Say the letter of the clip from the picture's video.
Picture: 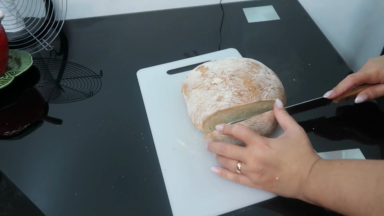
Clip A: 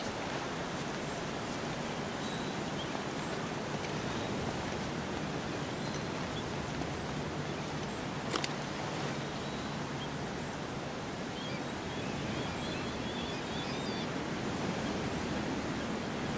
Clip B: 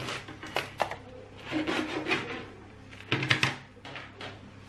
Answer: B